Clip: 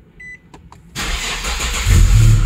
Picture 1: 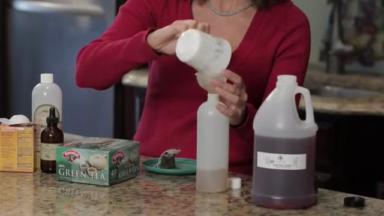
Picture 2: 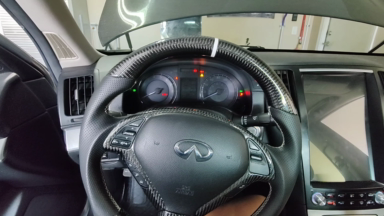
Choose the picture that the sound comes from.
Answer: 2